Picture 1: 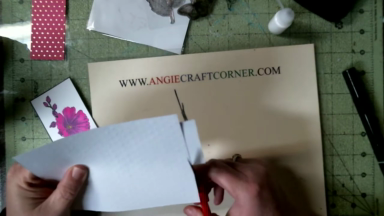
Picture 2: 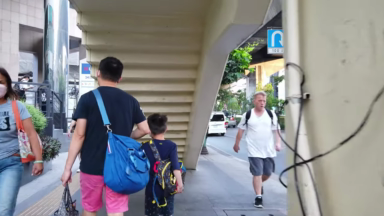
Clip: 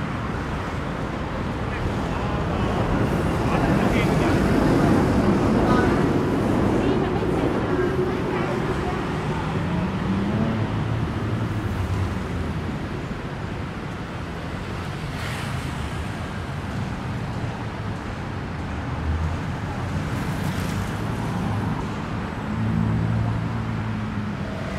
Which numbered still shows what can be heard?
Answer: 2